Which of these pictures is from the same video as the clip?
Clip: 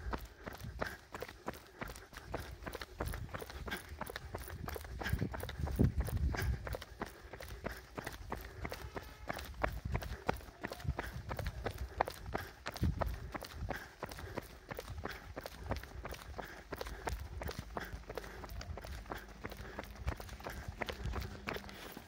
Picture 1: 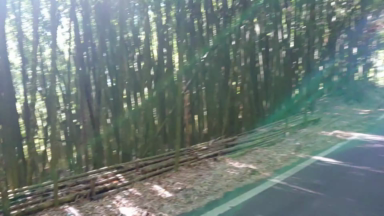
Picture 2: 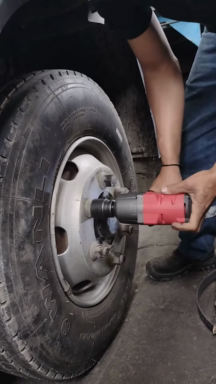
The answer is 1